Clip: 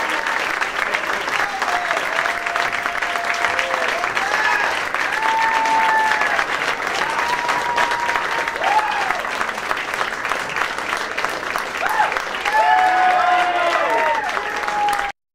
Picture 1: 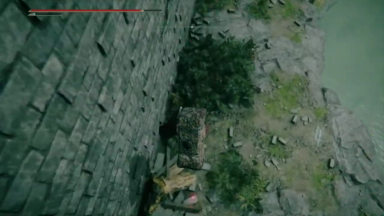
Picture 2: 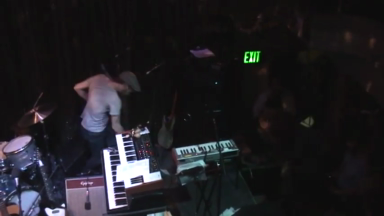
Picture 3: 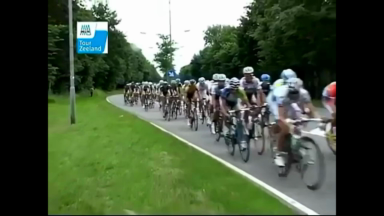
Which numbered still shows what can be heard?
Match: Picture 2